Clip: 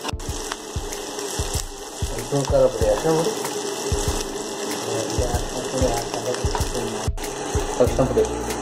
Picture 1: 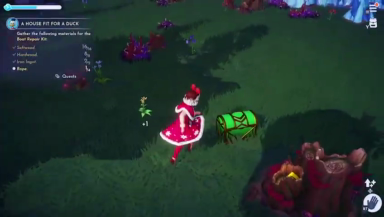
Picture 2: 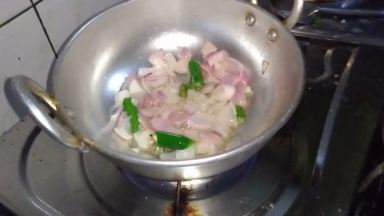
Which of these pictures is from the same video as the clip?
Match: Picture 2